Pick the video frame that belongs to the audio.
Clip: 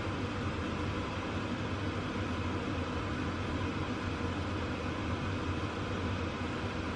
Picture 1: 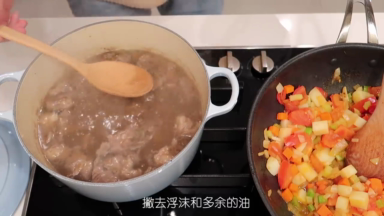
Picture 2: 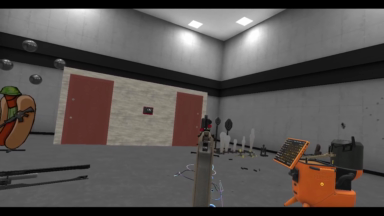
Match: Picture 1